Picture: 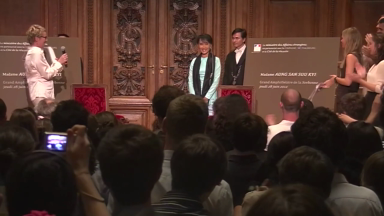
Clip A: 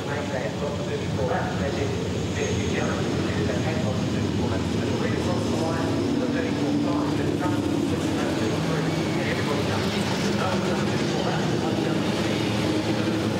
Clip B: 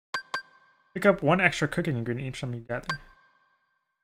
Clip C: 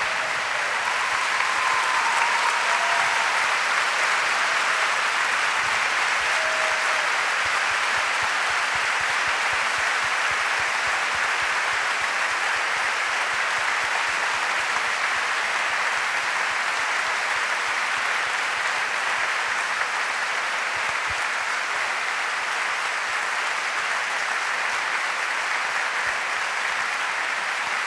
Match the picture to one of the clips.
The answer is C